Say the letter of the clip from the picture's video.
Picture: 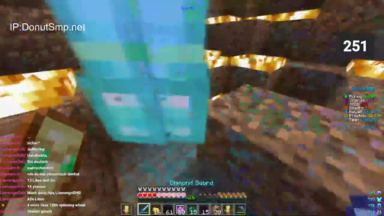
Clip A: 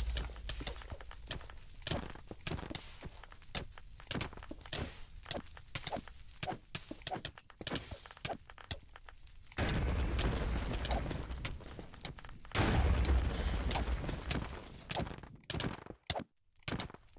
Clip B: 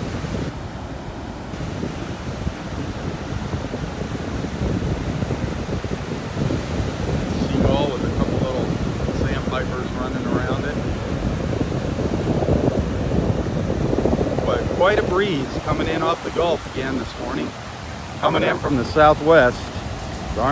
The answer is A